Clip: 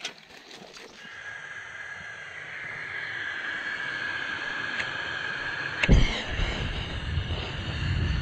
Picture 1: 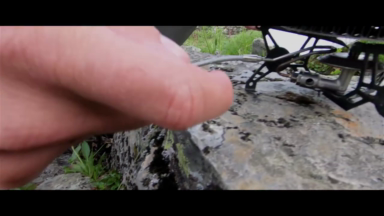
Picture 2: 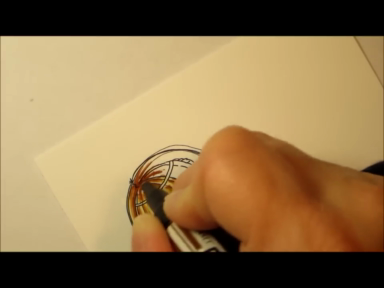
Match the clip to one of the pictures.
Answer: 1